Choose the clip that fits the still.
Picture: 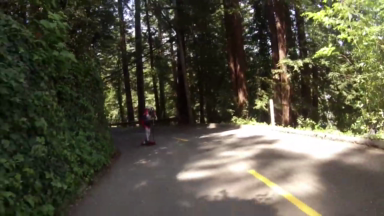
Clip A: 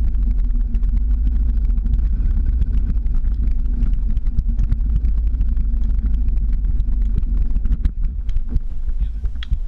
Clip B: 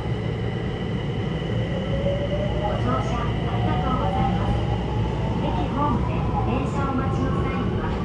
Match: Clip A